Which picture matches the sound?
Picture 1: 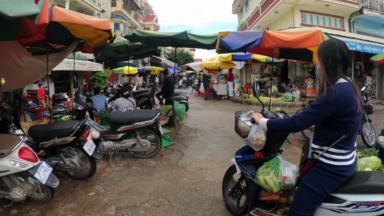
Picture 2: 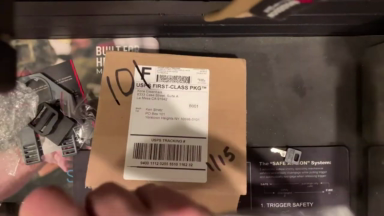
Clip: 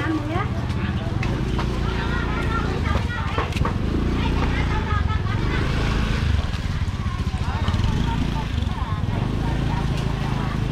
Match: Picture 1